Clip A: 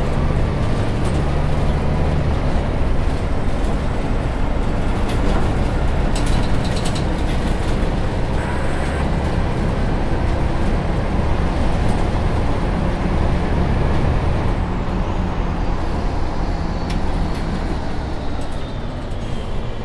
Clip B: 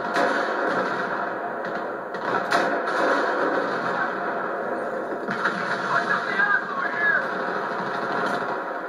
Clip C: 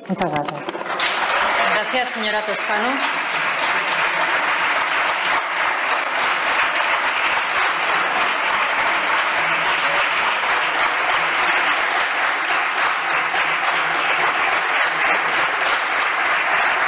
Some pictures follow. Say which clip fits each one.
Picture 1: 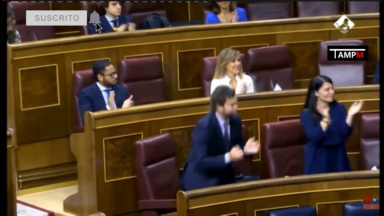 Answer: C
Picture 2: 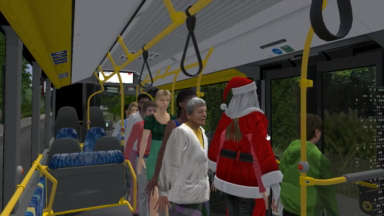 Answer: A